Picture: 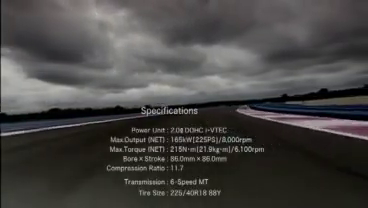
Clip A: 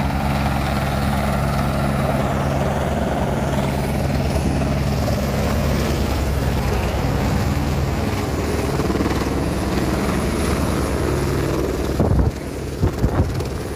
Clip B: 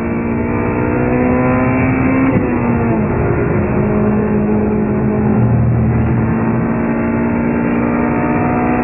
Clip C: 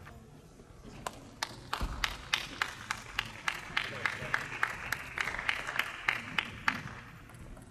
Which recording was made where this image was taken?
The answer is B